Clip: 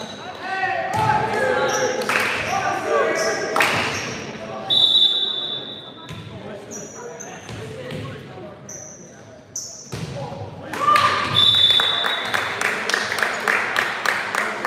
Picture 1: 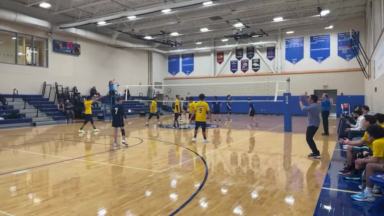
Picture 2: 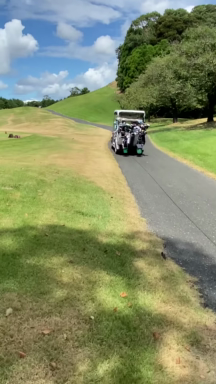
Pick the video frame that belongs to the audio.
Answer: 1